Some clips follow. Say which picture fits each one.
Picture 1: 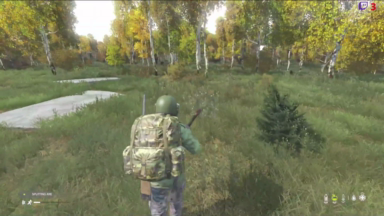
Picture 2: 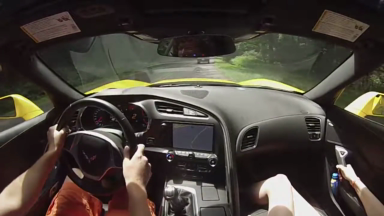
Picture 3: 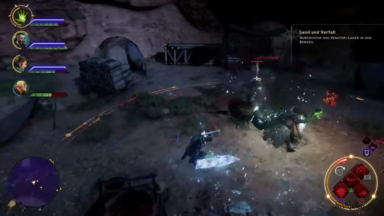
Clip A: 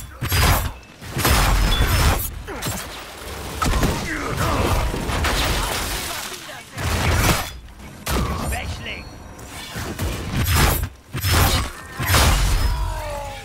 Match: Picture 3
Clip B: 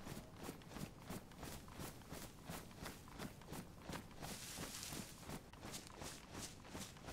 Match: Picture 1